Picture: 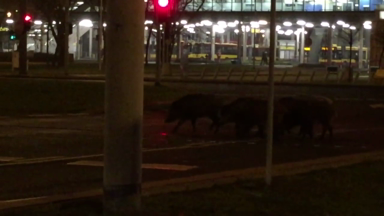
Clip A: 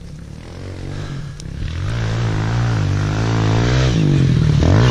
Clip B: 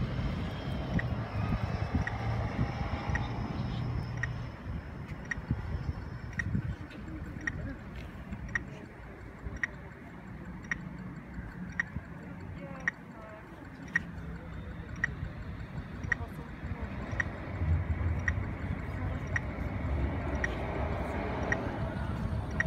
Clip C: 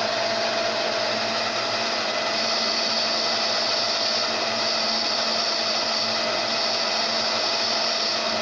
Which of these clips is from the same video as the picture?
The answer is B